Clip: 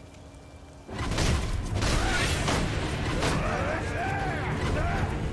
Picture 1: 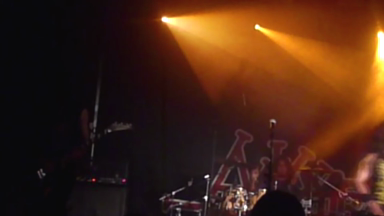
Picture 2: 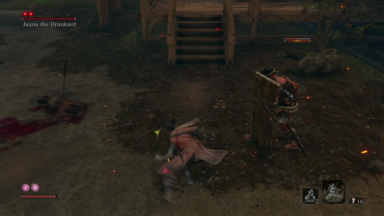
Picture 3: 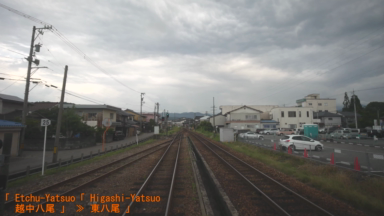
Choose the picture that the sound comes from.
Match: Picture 2